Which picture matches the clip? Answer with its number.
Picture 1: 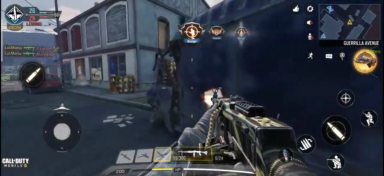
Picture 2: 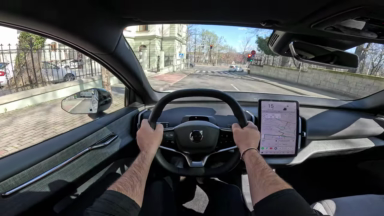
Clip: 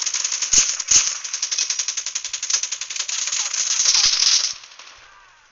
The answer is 1